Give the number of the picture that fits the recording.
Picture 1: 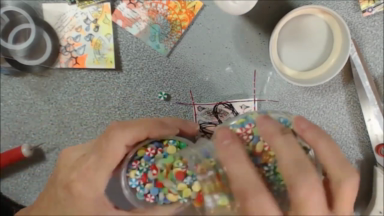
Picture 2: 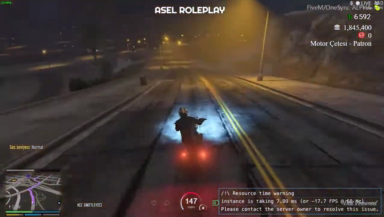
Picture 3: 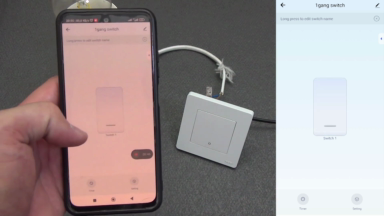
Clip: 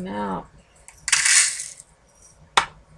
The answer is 1